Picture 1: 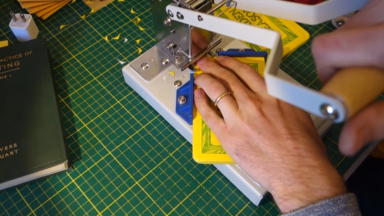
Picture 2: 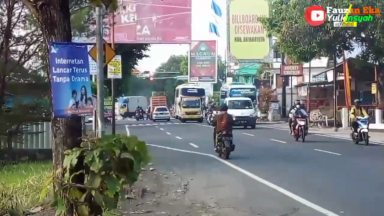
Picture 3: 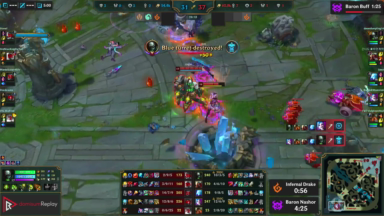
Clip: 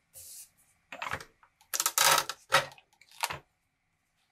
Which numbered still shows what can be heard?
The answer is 1